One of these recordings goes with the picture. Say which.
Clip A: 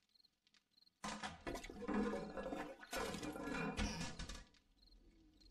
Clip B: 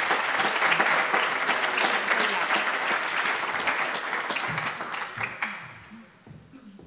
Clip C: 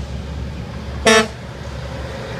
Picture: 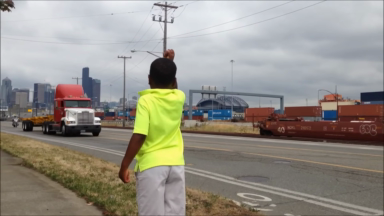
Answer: C